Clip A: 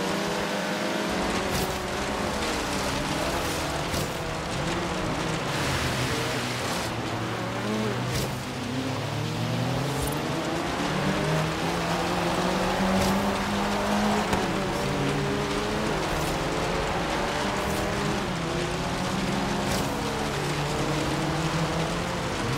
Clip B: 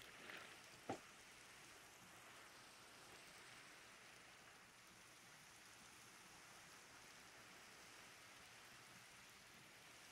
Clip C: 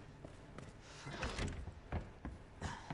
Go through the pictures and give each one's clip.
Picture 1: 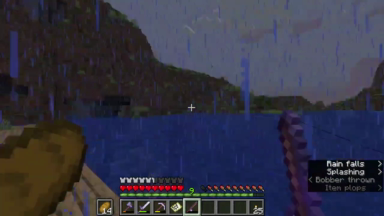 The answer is B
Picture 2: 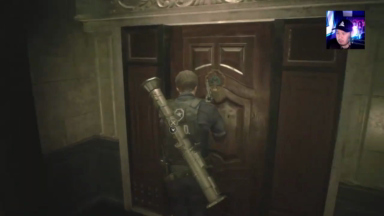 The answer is C